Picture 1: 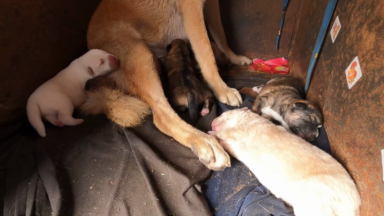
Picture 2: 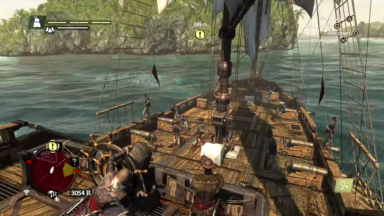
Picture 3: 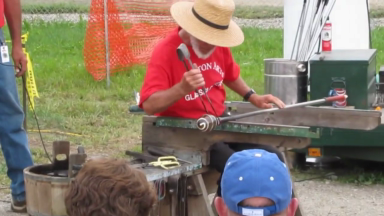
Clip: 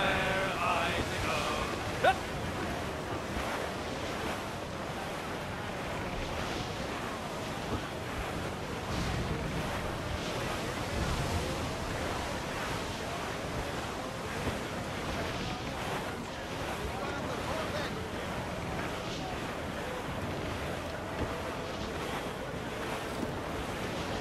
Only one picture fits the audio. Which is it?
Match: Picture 2